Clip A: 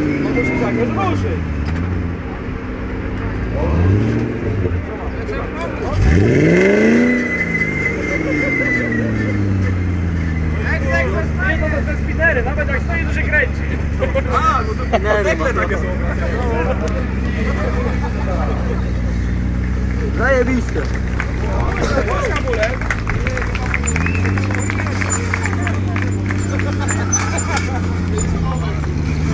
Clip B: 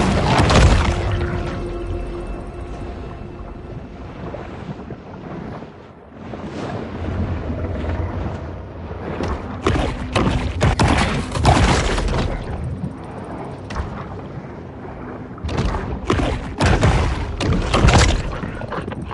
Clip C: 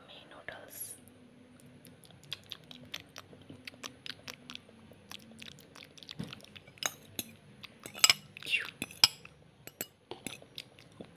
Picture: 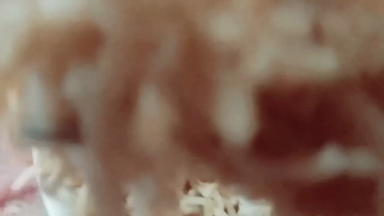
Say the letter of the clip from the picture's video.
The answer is C